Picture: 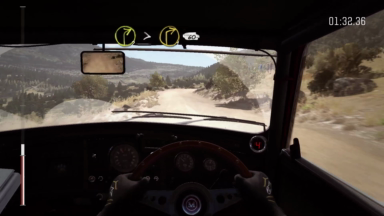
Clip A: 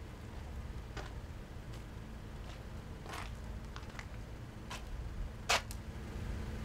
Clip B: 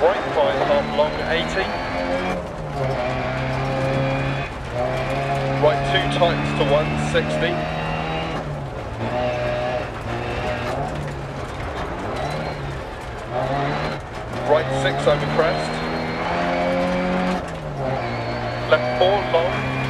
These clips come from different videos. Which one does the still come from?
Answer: B